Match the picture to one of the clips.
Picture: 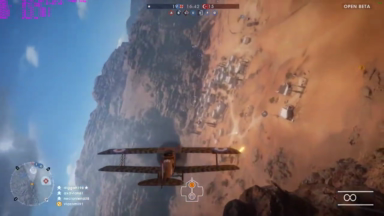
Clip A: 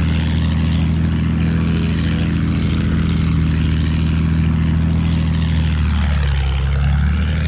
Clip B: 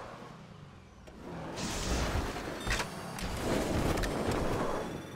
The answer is A